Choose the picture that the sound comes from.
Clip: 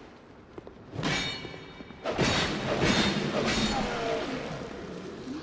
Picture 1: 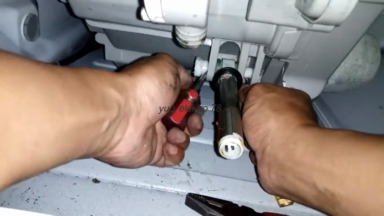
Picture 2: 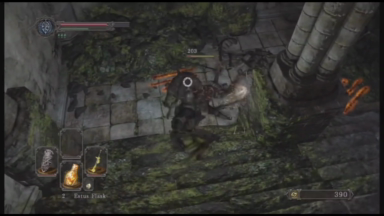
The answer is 2